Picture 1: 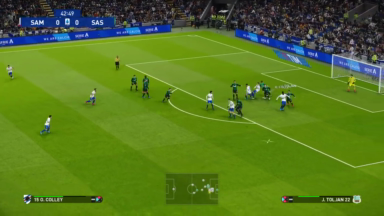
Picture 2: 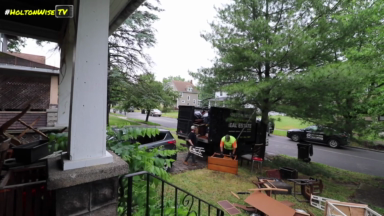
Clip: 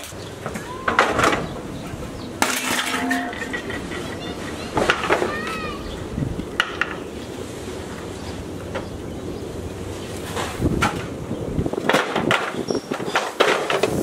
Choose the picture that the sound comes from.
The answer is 2